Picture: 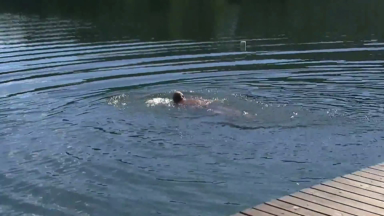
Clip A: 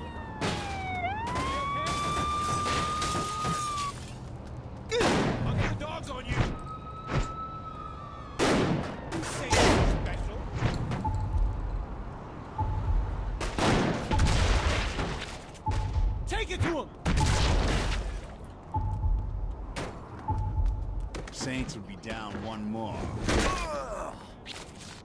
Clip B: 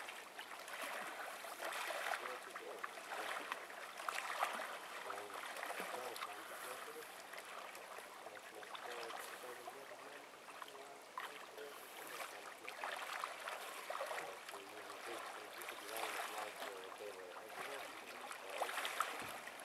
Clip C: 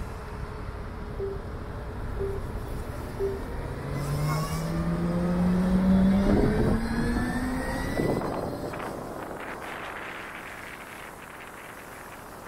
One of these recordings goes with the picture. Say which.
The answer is B